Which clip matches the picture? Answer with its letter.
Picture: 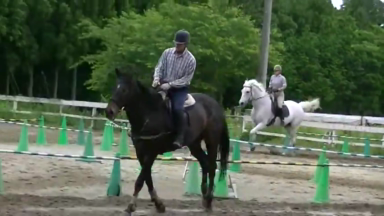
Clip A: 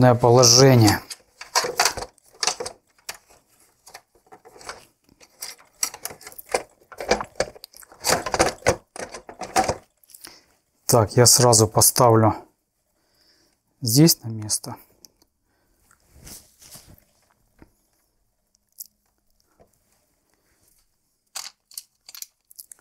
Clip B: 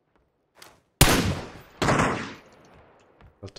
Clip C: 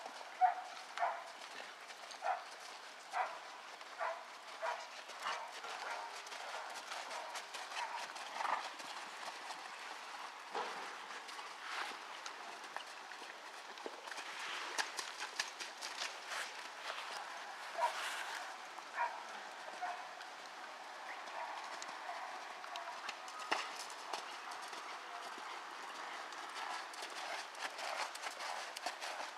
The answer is C